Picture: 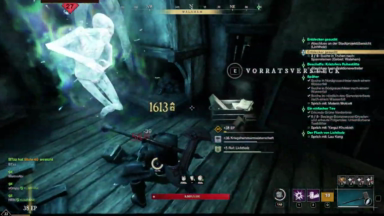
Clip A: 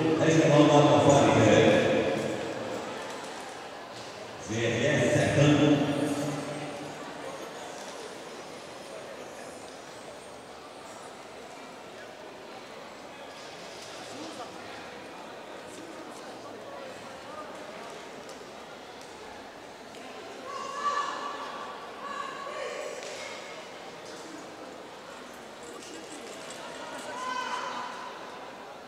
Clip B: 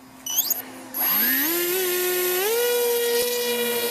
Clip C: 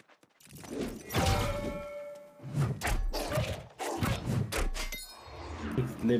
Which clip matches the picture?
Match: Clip C